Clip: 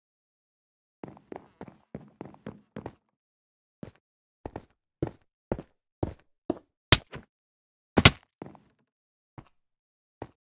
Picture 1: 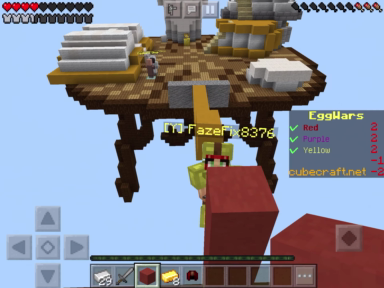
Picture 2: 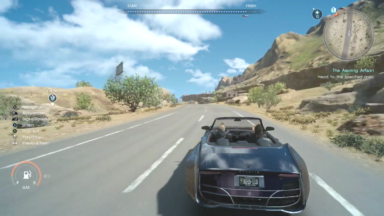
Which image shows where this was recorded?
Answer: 1